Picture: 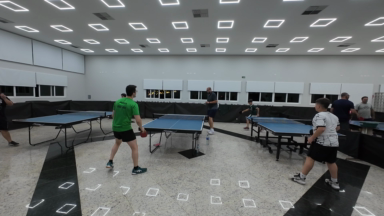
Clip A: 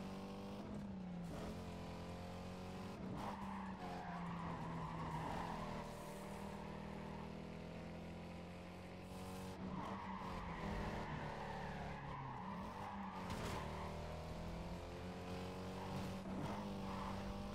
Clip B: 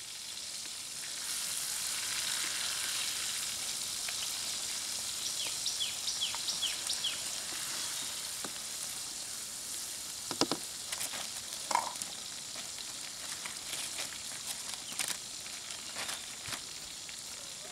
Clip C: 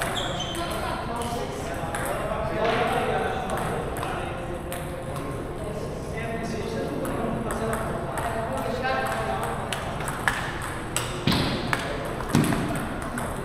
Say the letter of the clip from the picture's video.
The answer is C